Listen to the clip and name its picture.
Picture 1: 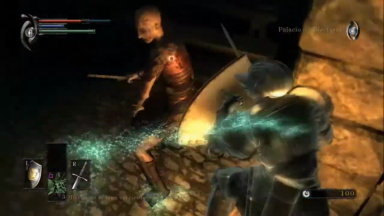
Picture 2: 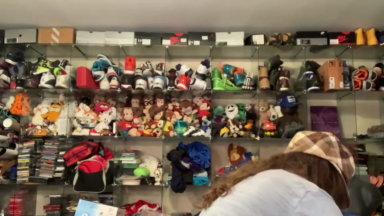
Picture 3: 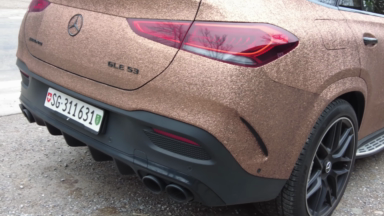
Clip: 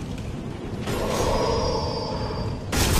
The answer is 1